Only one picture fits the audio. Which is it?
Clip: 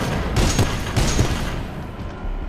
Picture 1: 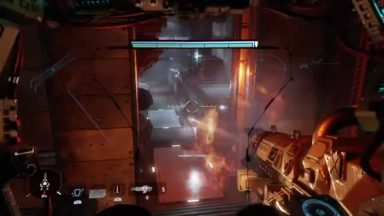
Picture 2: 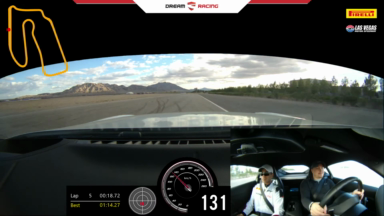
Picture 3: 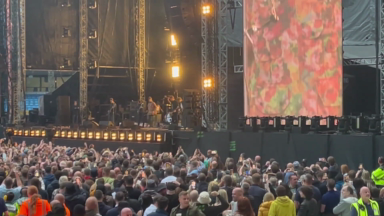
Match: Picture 1